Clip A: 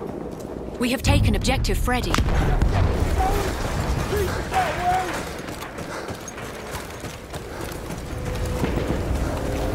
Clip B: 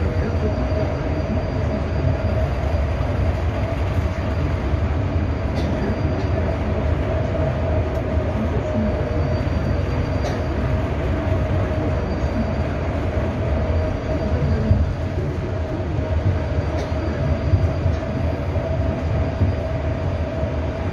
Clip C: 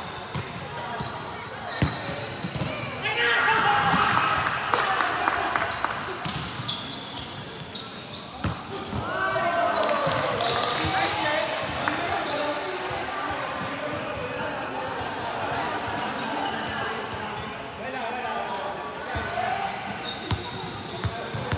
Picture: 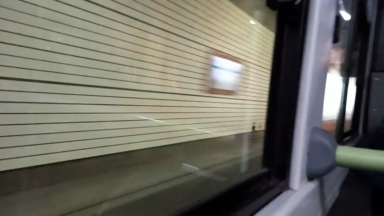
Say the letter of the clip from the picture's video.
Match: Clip B